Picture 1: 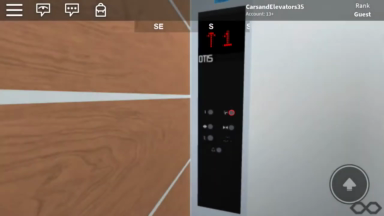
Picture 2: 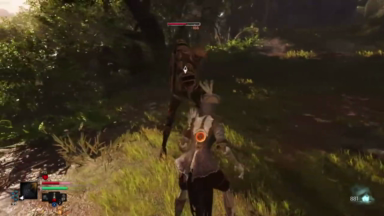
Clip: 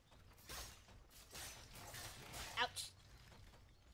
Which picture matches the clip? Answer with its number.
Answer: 2